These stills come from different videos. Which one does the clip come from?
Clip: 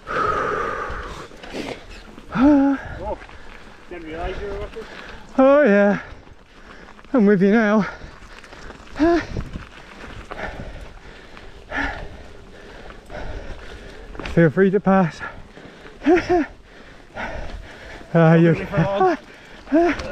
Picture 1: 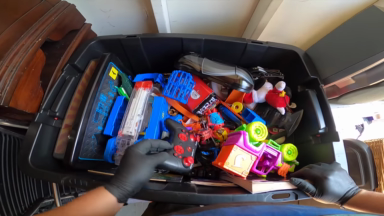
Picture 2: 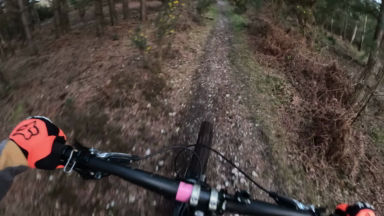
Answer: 2